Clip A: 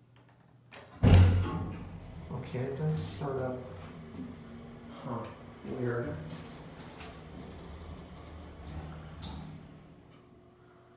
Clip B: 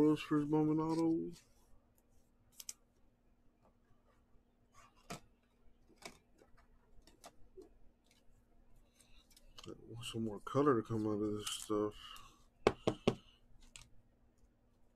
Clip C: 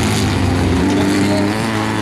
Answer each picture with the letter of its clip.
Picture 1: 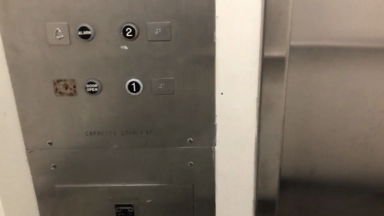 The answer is A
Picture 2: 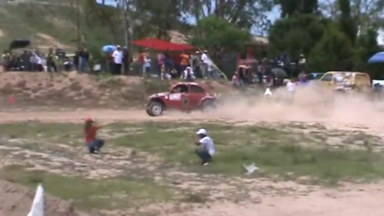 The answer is C